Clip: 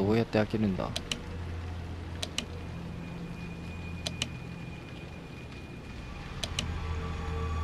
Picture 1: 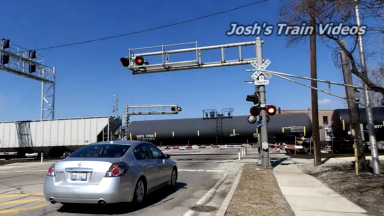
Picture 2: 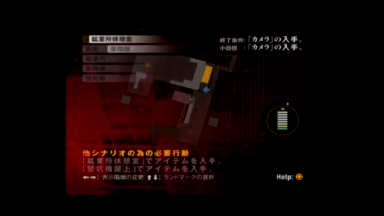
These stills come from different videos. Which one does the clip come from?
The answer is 2